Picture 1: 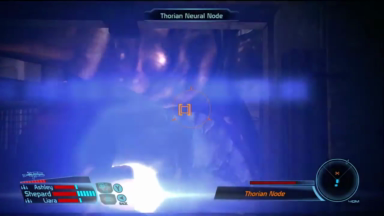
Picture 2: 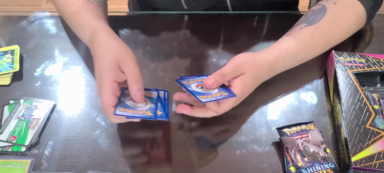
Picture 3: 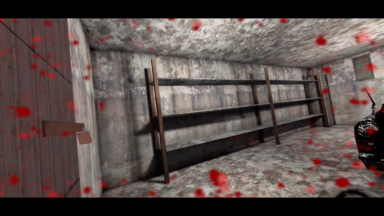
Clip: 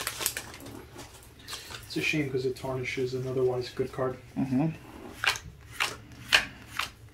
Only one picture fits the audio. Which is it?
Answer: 2